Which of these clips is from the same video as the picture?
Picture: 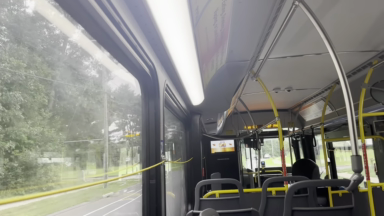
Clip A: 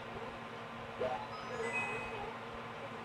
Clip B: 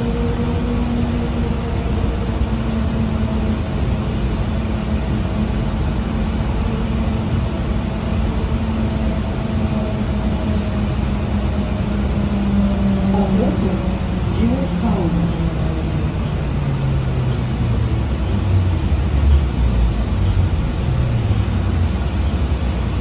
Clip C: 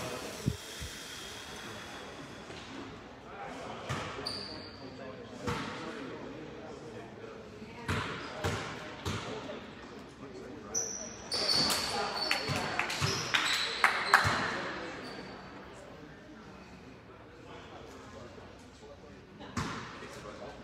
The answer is B